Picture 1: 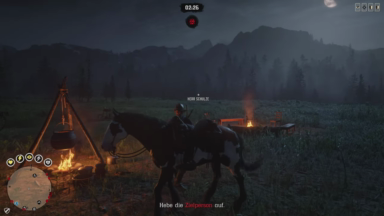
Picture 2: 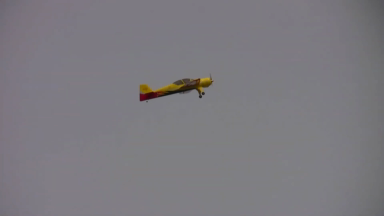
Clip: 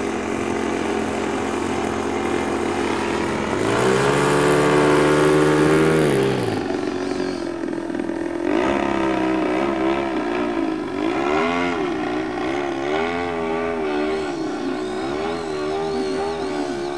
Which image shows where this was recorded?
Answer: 2